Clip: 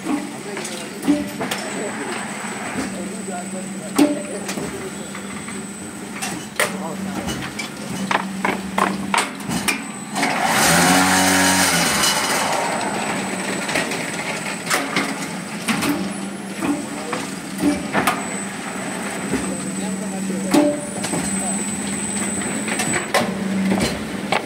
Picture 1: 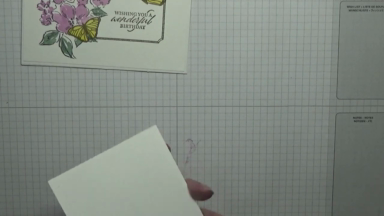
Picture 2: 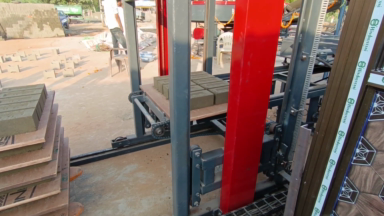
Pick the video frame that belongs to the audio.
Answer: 2